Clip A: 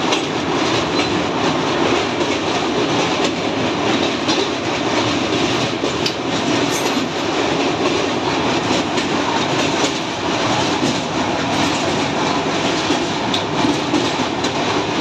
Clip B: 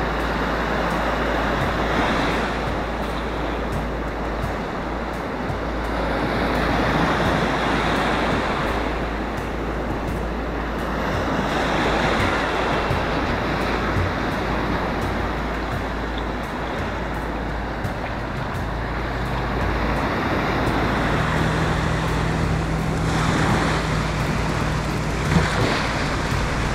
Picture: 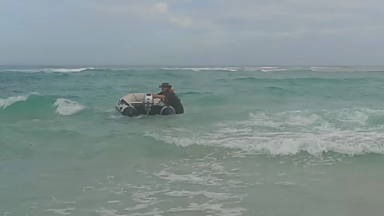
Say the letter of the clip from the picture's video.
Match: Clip B